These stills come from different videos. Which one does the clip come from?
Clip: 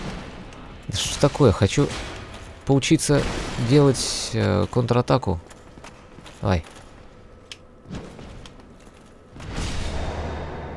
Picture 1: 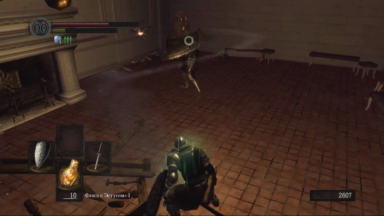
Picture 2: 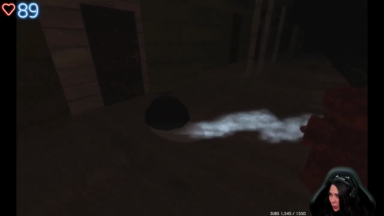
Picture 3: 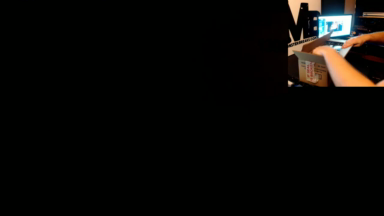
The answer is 1